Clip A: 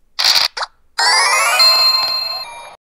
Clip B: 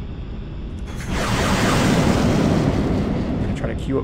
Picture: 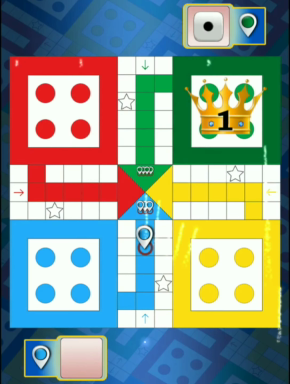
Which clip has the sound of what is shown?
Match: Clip A